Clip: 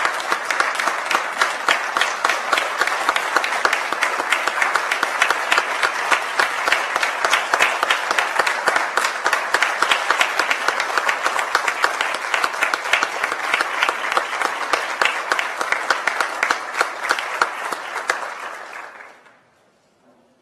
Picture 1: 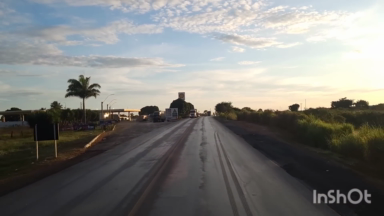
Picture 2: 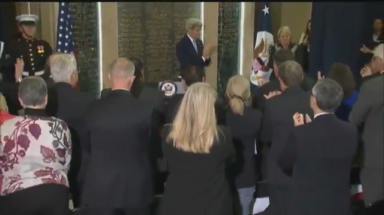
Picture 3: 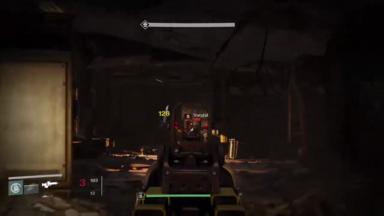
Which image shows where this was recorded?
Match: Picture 2